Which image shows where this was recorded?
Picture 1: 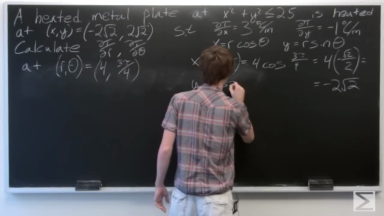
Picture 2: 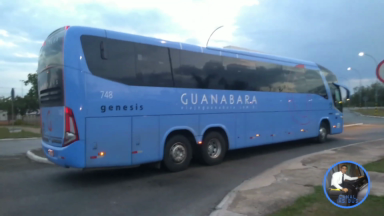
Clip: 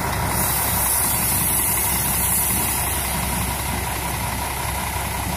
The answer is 2